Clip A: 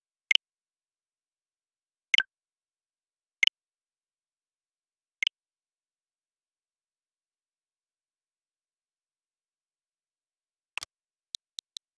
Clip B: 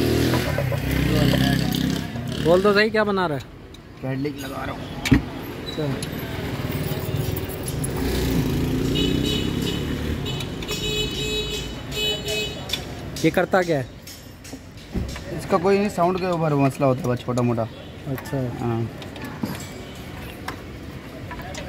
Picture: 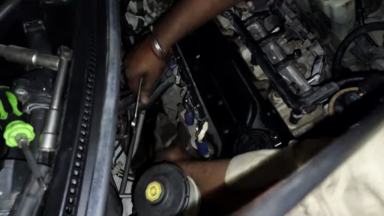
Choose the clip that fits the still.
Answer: B